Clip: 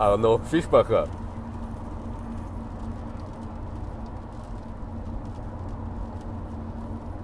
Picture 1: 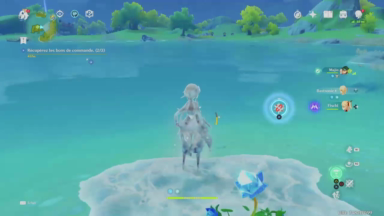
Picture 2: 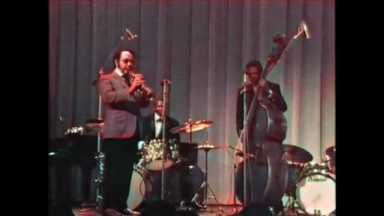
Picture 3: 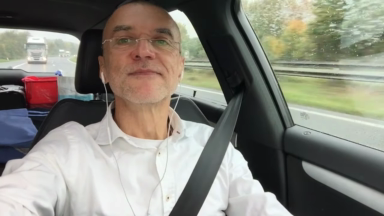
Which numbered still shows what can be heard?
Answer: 3